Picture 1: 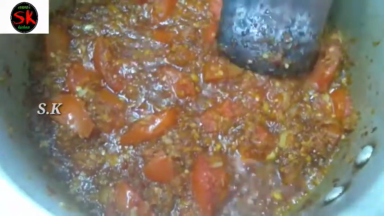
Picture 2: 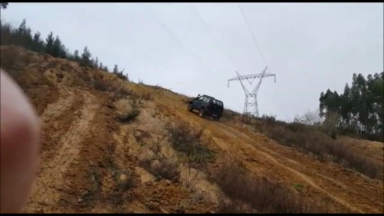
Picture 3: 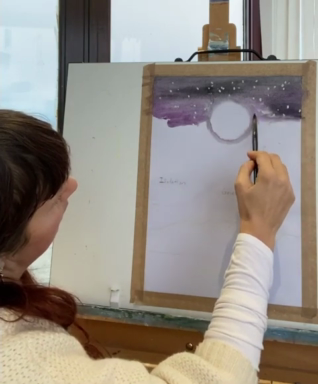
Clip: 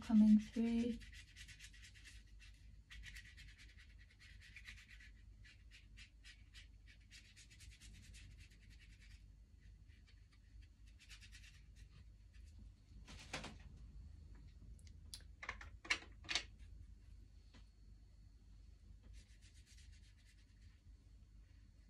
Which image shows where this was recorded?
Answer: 3